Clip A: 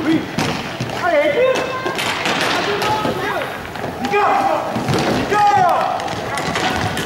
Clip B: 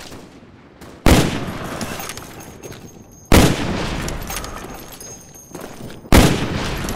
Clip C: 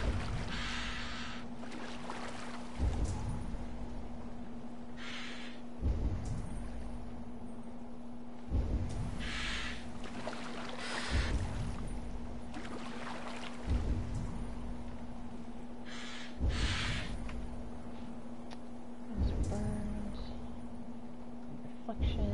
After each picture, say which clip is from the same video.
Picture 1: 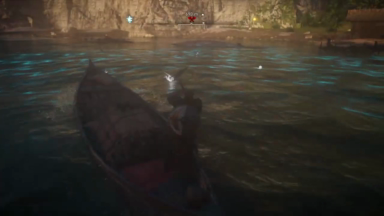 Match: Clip C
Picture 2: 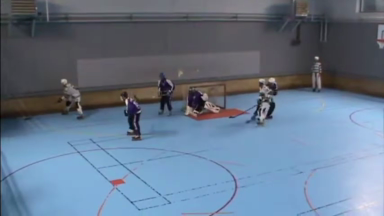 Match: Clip A